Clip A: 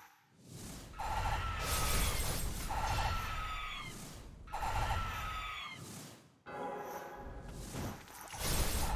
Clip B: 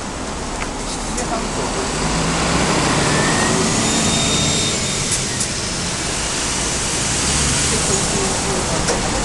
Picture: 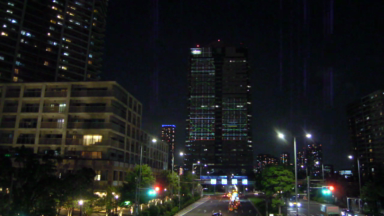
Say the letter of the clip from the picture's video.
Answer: B